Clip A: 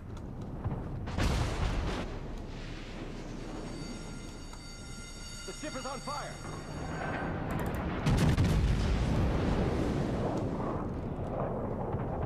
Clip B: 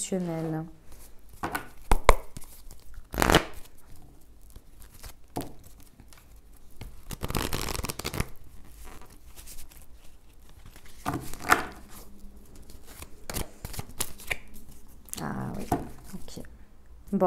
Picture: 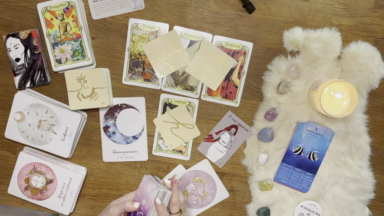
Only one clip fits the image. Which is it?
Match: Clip B